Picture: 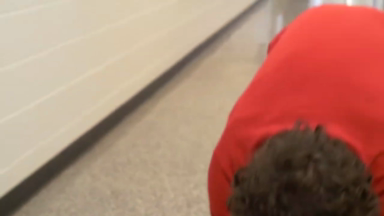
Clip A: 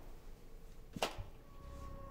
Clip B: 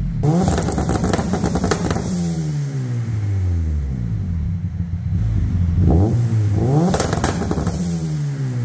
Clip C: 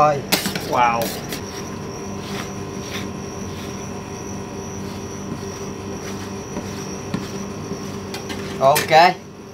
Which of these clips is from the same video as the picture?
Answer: A